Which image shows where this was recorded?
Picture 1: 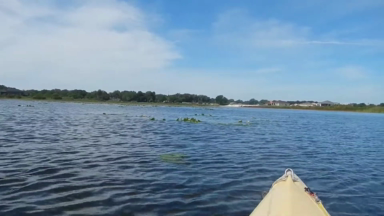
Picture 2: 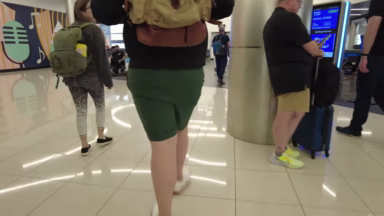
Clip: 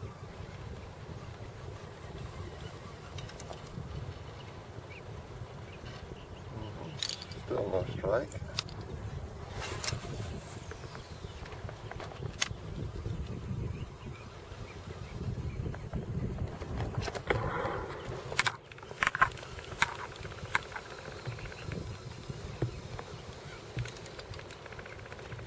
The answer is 1